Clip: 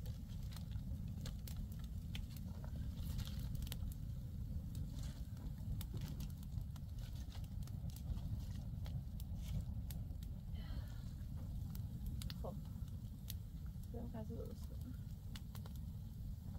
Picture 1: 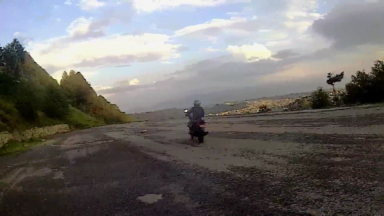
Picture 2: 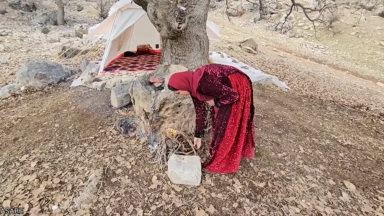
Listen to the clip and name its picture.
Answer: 2